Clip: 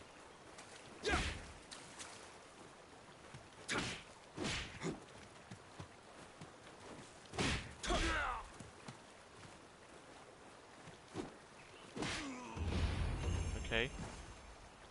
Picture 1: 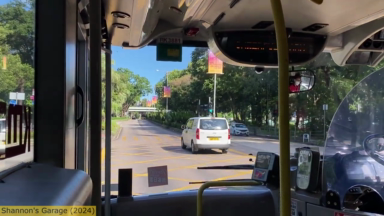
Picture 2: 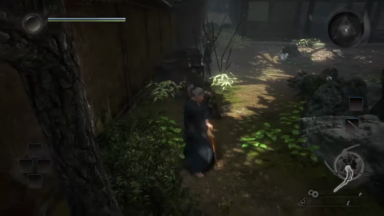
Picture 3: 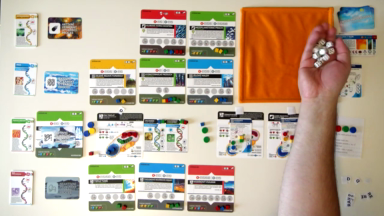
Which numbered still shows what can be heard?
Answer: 2